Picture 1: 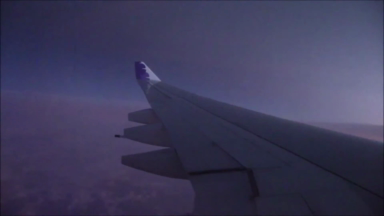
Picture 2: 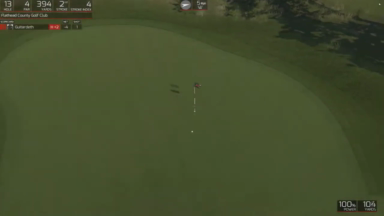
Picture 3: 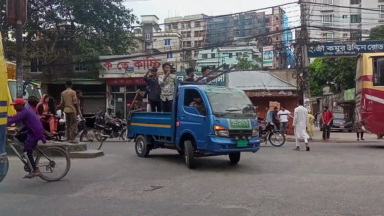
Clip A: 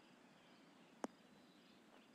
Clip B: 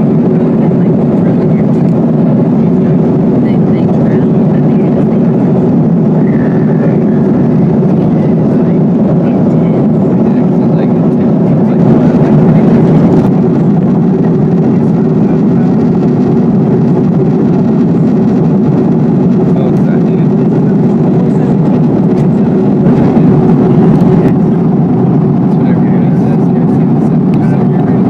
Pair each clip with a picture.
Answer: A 2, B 1